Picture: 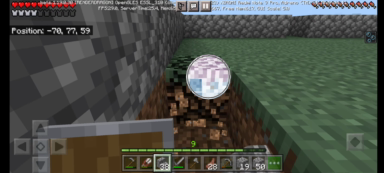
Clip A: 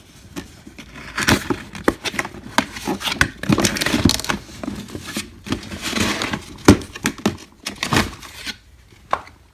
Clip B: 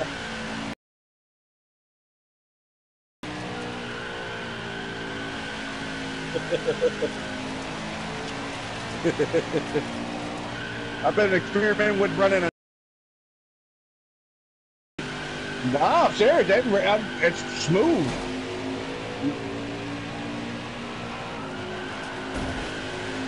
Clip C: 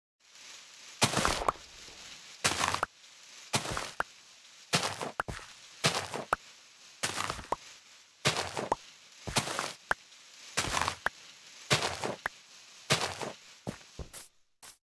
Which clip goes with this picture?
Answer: C